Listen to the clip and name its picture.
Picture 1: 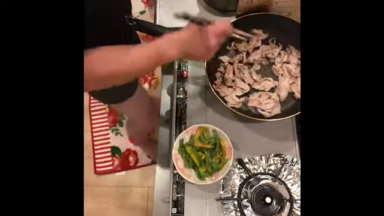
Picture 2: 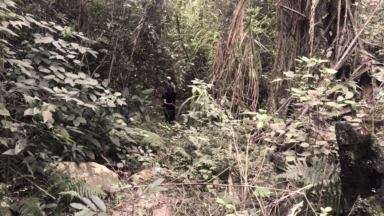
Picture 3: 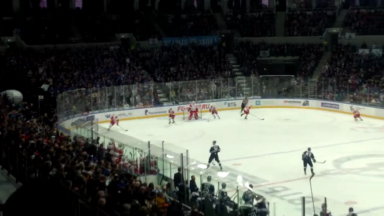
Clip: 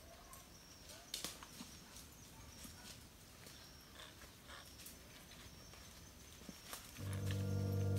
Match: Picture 2